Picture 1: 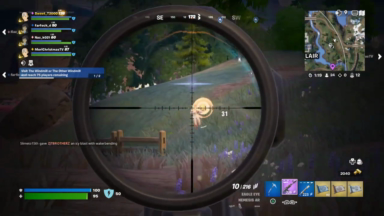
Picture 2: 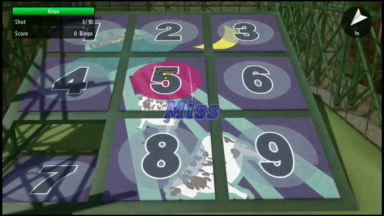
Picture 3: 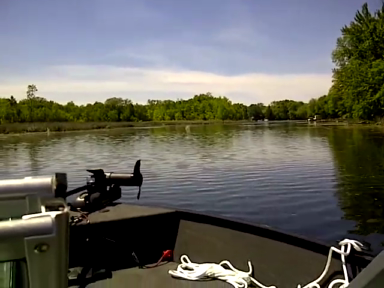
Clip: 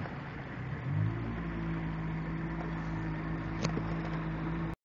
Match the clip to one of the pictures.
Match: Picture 3